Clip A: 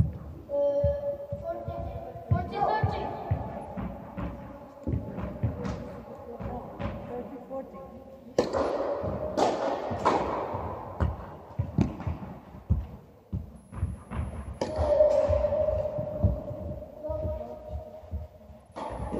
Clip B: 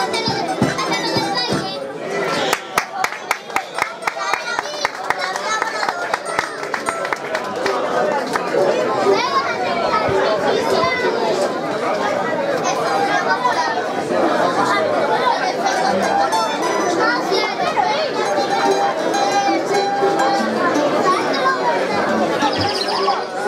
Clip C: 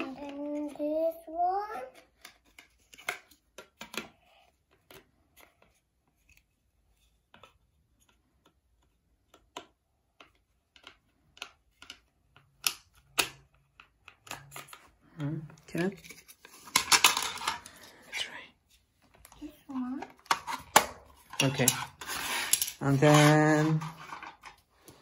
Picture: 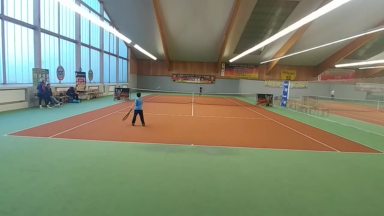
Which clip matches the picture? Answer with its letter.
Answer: A